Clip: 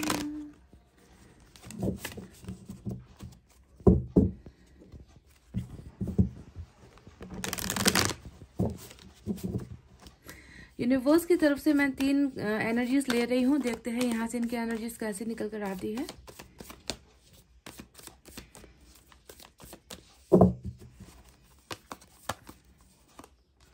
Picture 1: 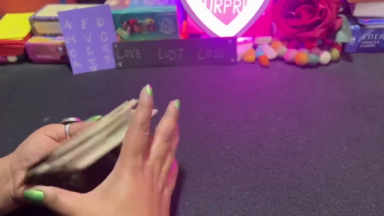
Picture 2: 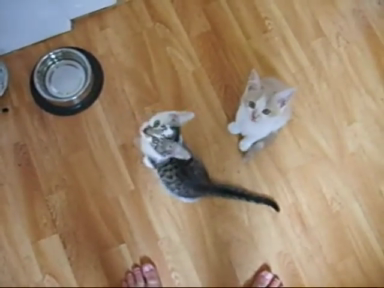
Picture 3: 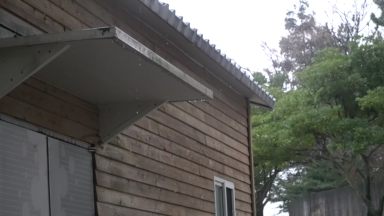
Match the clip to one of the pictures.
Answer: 1